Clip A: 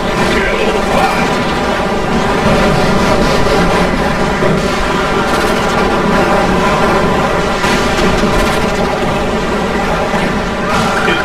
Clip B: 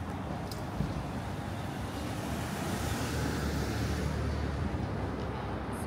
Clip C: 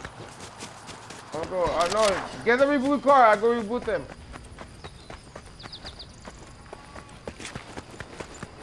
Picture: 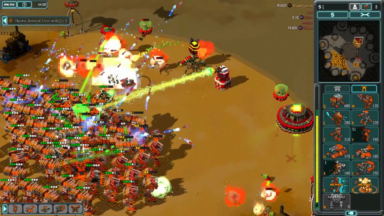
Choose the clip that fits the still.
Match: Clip A